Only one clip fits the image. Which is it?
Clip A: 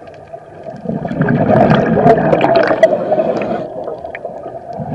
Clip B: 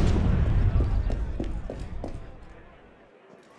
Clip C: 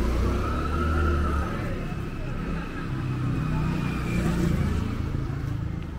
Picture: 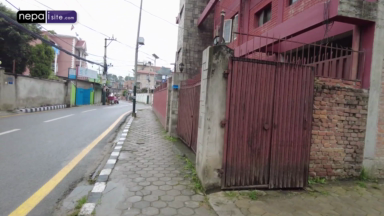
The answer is C